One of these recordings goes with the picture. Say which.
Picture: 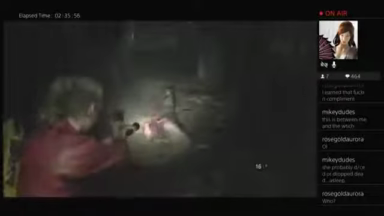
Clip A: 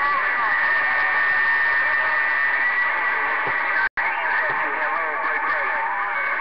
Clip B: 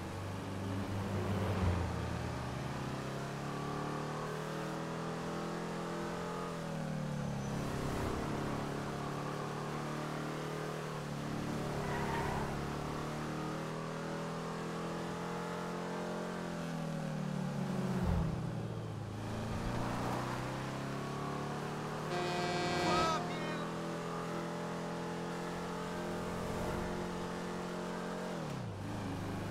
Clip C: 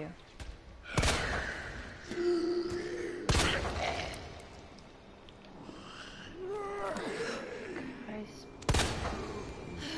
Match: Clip C